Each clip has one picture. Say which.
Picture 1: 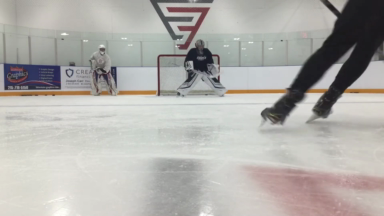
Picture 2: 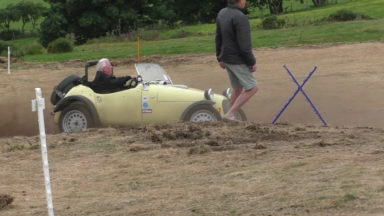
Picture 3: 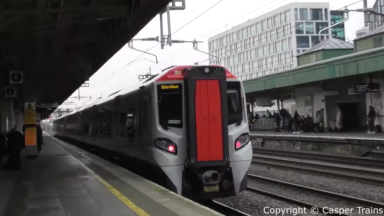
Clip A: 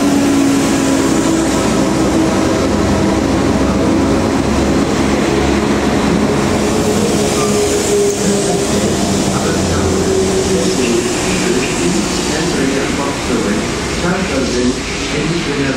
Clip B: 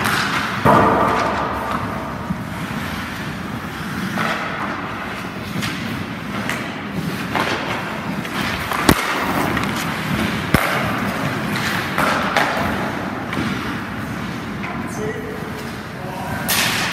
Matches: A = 3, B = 1